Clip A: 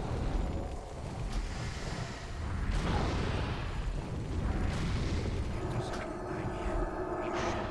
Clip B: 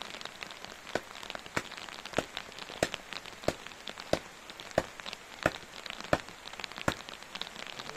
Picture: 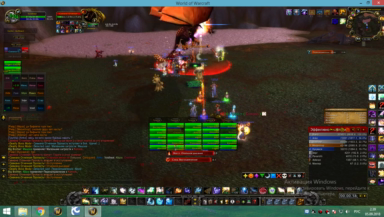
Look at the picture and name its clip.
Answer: A